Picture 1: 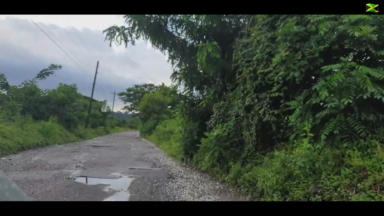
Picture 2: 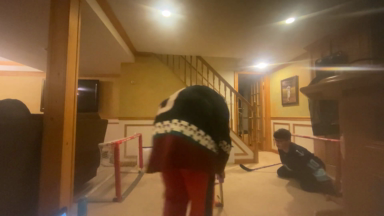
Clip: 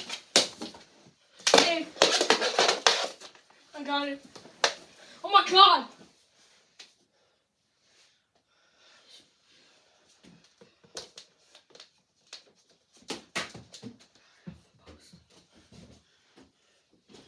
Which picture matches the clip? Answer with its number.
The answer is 2